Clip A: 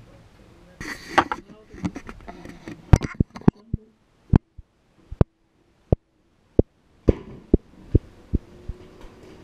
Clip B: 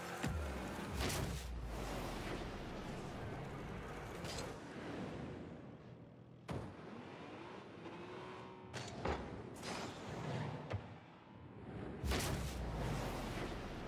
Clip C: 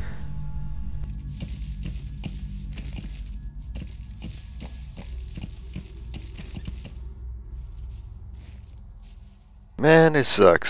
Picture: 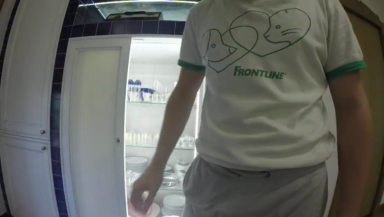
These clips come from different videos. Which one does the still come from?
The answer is A